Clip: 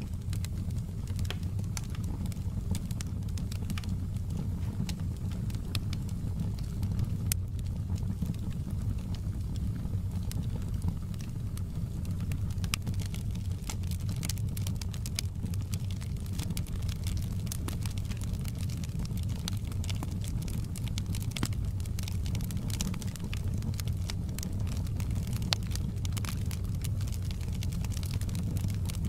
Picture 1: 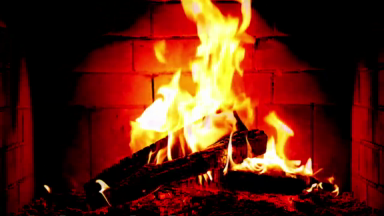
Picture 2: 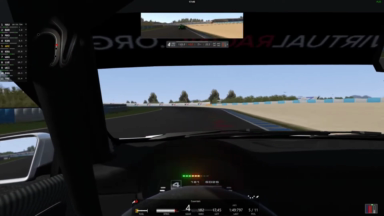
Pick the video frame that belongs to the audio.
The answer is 1